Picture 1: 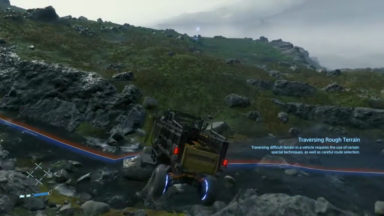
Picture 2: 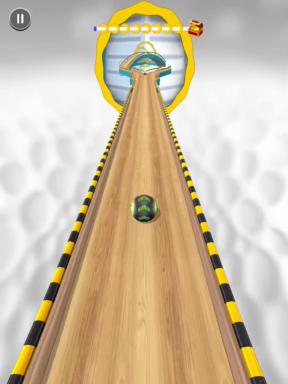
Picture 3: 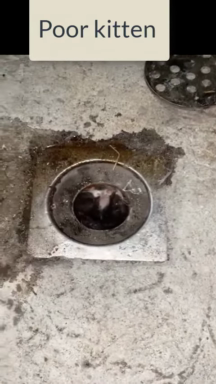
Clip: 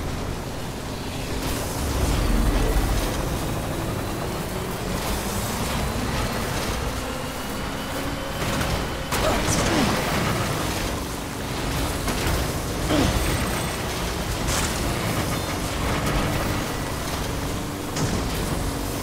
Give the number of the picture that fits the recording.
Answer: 1